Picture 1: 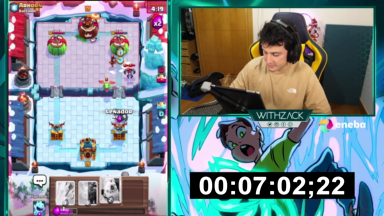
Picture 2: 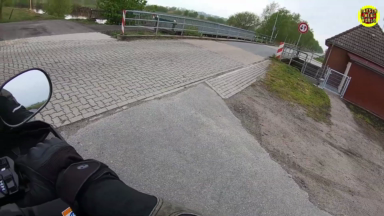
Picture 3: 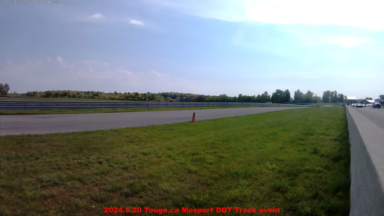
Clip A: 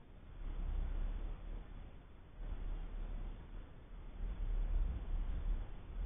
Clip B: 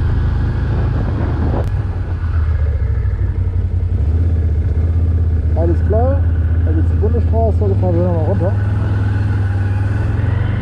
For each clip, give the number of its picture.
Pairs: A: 3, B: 2